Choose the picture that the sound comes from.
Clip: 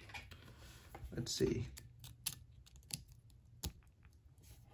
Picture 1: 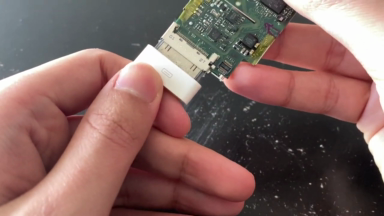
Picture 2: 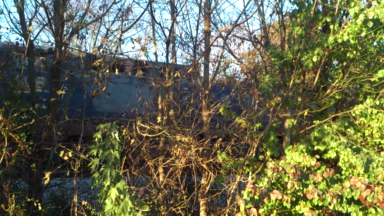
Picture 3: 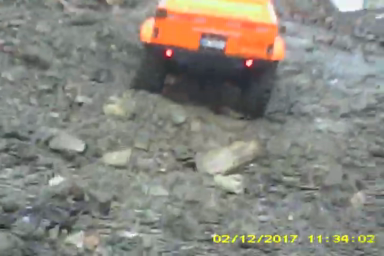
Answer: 1